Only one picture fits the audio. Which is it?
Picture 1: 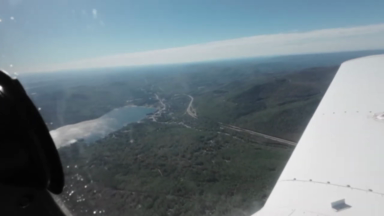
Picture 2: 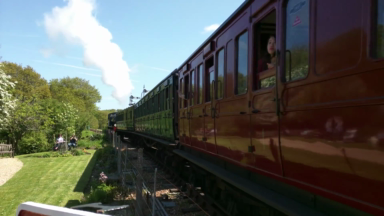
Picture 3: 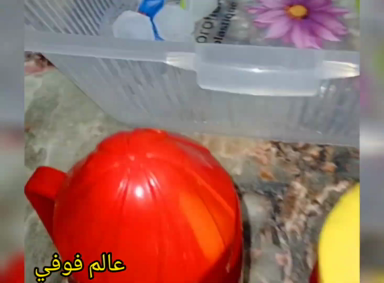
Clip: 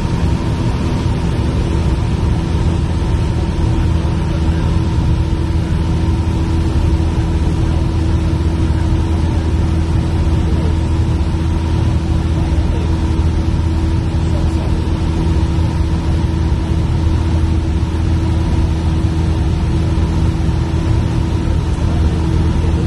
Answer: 1